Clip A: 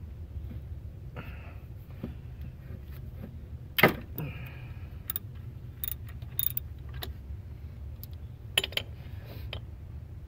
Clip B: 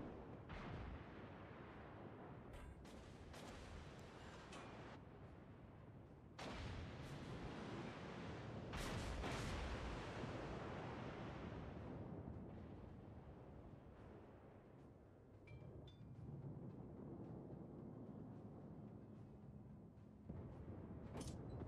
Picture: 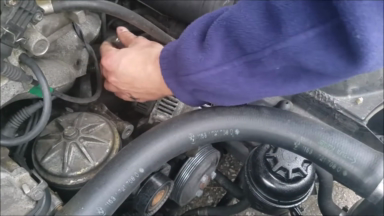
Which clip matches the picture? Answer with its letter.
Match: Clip A